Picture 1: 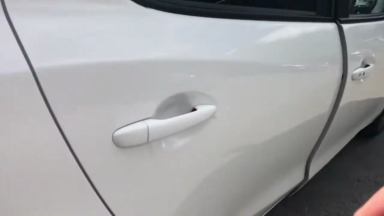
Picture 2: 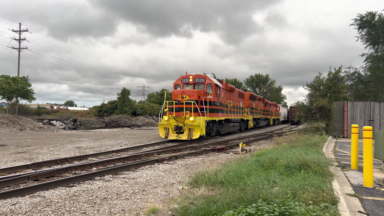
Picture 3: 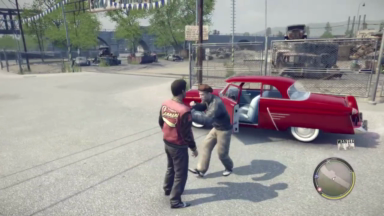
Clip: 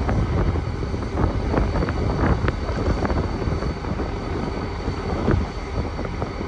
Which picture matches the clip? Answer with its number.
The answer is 2